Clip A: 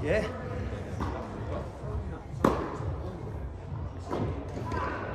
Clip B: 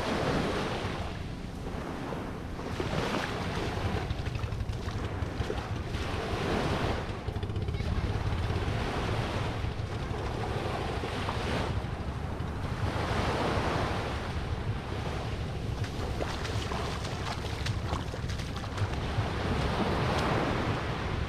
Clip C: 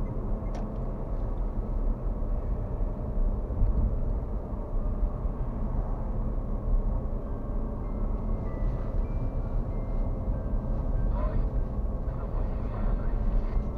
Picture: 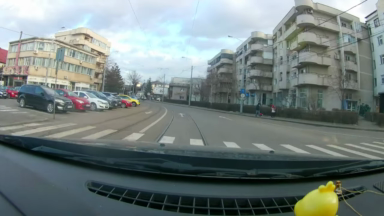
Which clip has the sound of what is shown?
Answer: C